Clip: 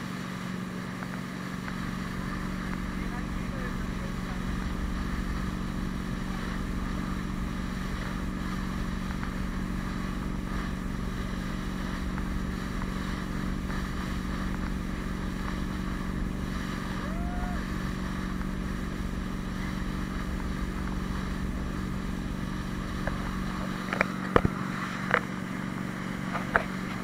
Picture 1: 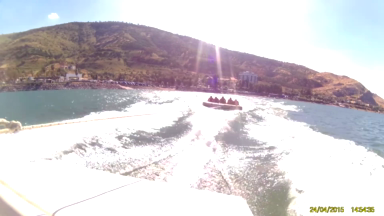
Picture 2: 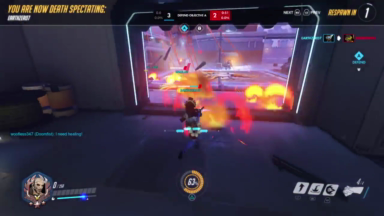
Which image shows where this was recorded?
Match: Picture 1